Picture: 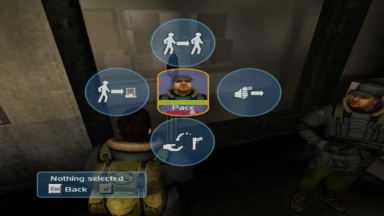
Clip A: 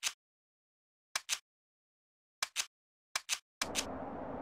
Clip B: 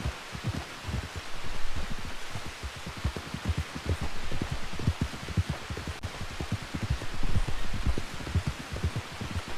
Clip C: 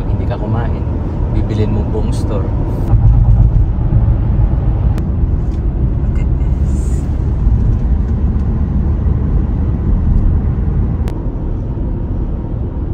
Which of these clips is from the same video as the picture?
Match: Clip A